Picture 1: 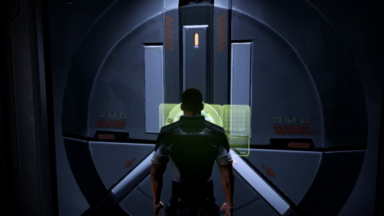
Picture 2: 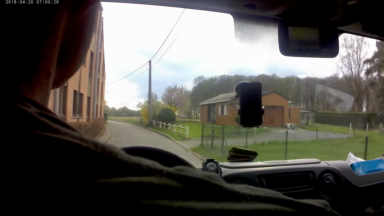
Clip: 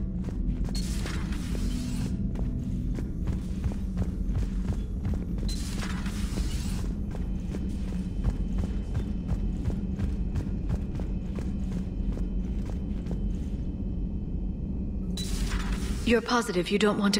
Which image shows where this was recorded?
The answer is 1